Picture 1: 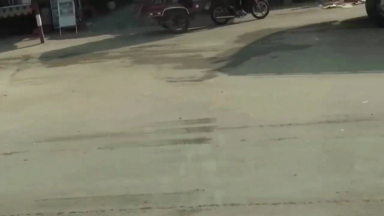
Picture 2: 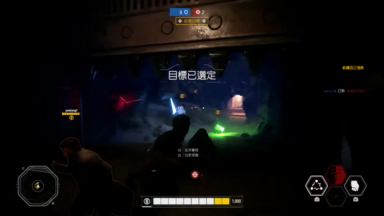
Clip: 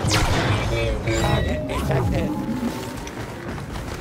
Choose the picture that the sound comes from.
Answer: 2